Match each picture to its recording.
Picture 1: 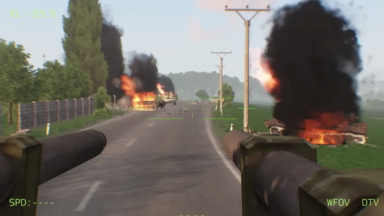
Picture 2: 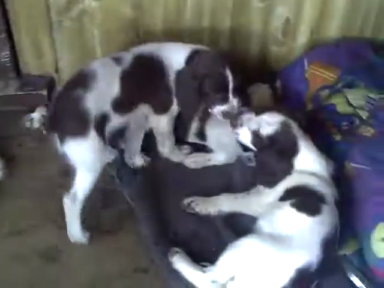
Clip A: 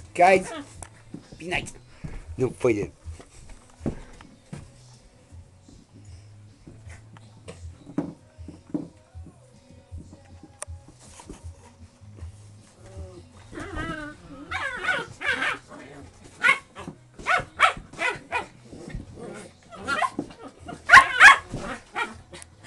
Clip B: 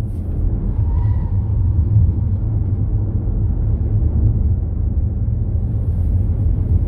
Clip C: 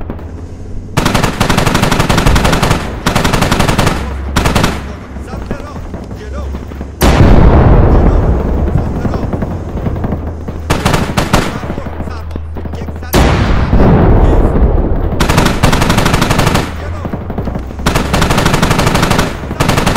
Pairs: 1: C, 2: A